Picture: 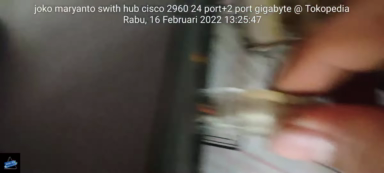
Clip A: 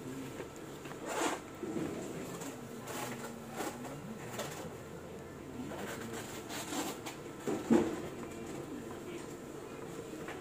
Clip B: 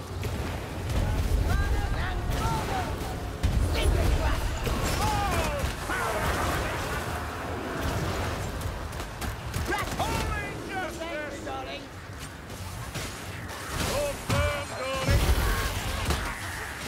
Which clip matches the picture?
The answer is A